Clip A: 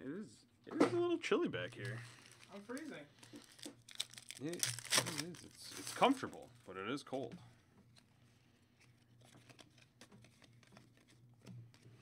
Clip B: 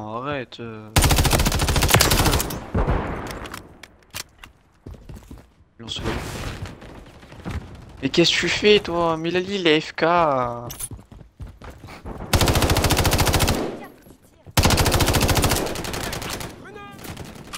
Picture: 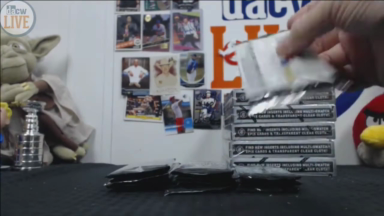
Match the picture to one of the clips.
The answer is A